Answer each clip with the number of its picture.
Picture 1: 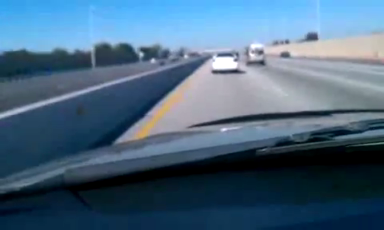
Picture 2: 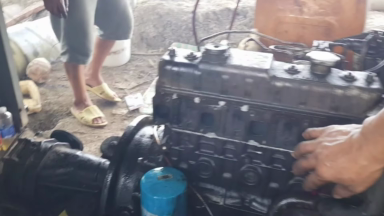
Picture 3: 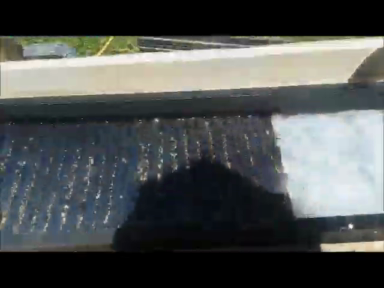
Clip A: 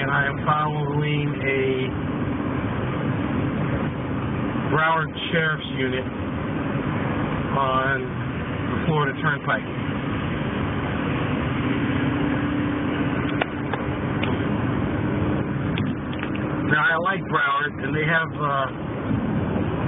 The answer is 1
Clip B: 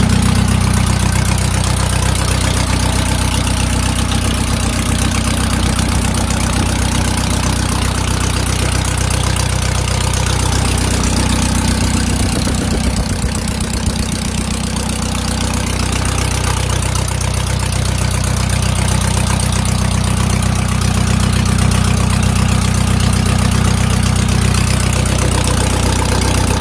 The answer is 2